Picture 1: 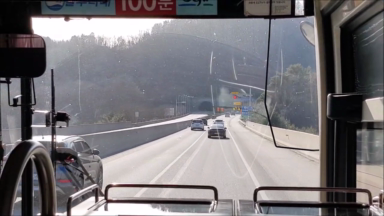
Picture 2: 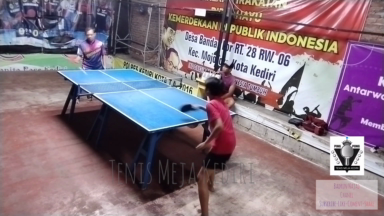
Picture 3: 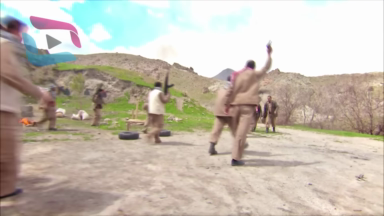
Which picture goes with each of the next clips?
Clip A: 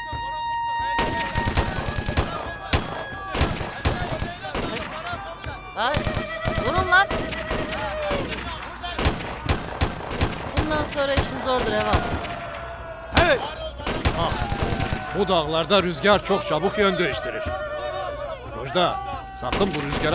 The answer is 3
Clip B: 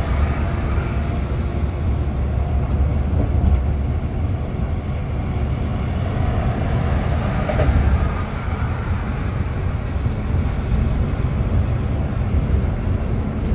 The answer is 1